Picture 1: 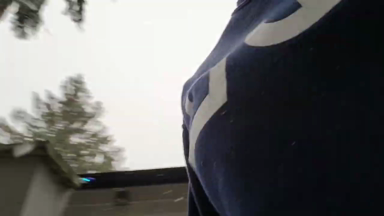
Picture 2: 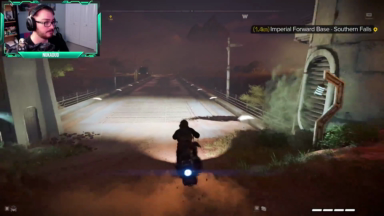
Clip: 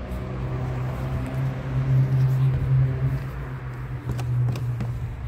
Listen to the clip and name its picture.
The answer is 1